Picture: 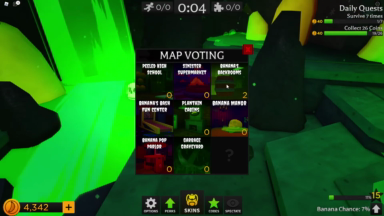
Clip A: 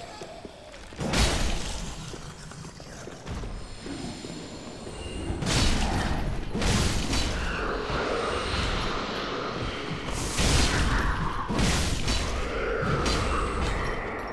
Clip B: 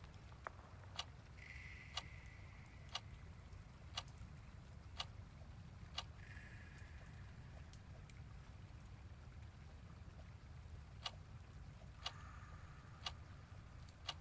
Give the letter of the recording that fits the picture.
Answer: B